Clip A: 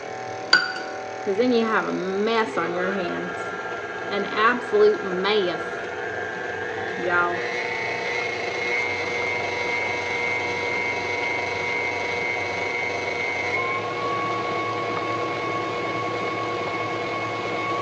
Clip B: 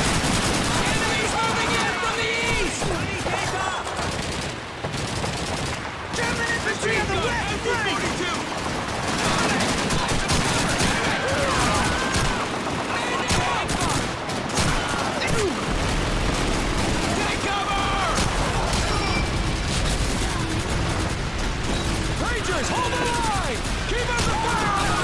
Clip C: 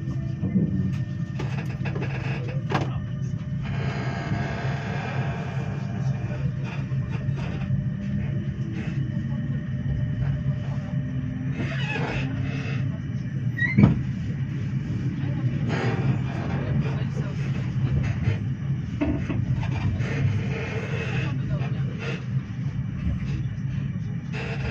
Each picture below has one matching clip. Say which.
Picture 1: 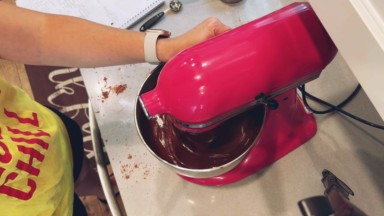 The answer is A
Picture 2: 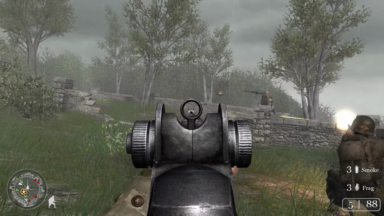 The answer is B